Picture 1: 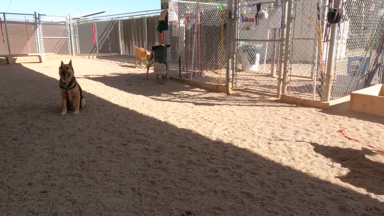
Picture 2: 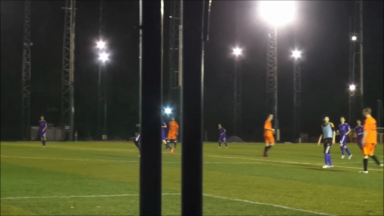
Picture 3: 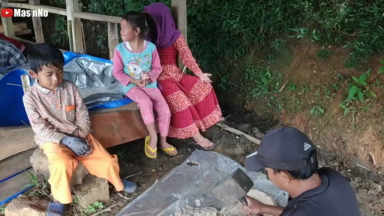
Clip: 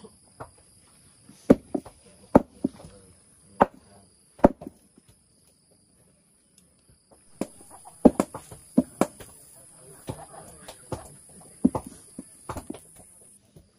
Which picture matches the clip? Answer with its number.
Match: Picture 3